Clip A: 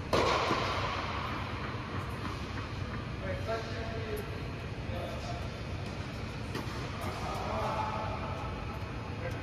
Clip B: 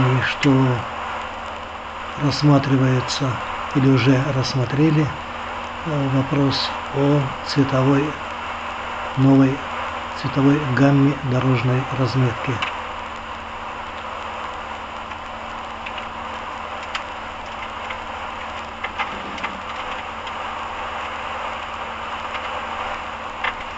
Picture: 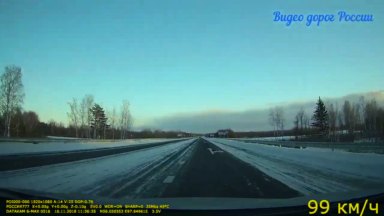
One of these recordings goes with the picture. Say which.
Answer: B